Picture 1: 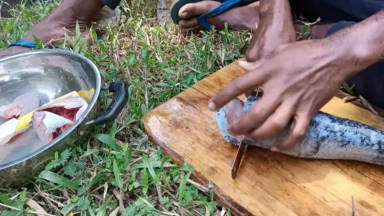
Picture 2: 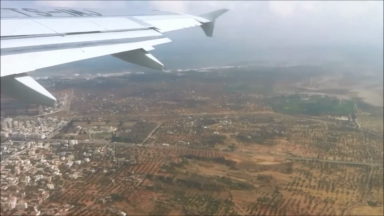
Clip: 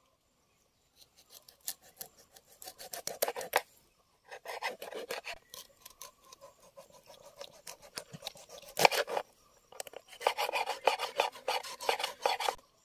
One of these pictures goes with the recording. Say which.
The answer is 1